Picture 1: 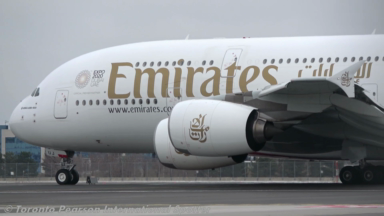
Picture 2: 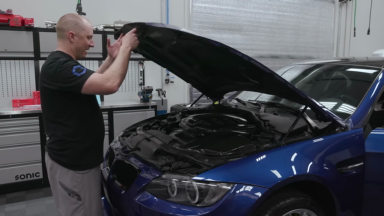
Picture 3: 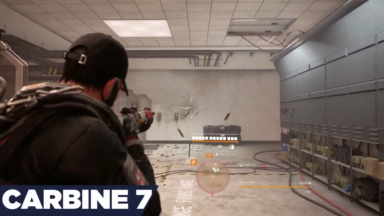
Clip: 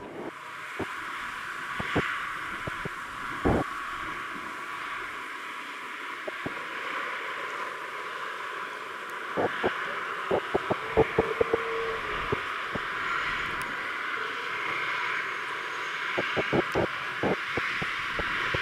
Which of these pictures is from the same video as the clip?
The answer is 1